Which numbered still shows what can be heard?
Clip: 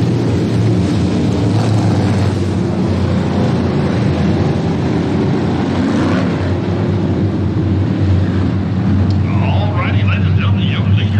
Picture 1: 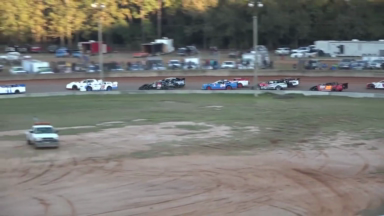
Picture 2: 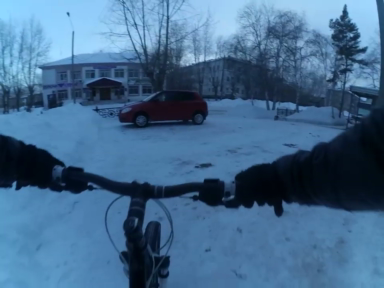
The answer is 1